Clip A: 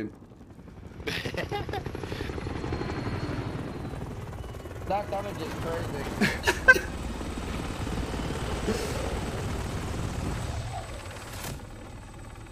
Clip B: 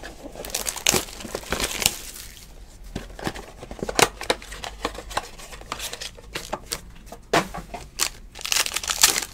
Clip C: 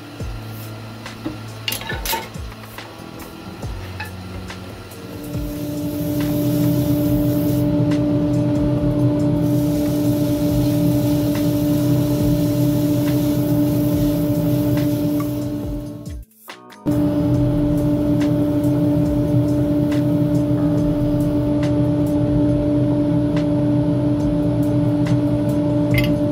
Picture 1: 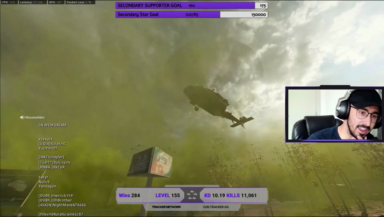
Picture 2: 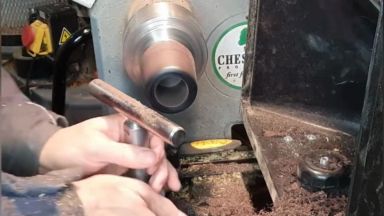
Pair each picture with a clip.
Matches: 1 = A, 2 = C